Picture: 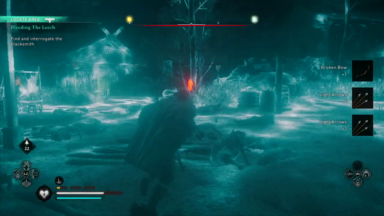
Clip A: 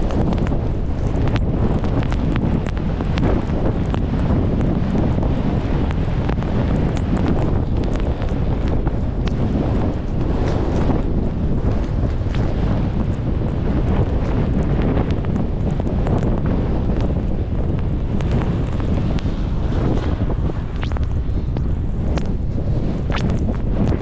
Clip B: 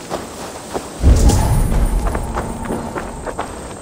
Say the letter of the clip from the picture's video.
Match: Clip B